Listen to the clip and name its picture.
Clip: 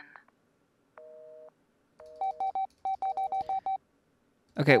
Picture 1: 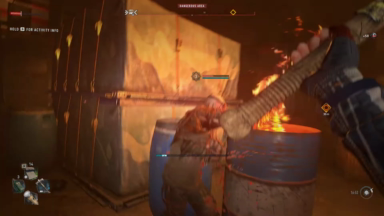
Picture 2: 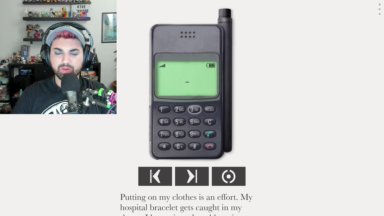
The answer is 2